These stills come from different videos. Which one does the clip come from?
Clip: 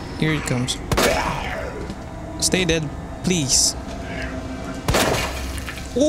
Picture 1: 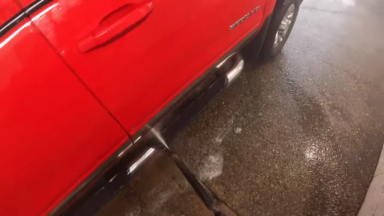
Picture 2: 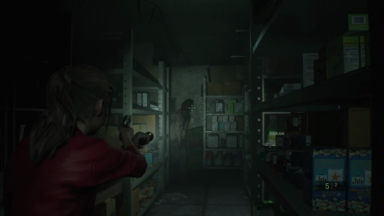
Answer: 2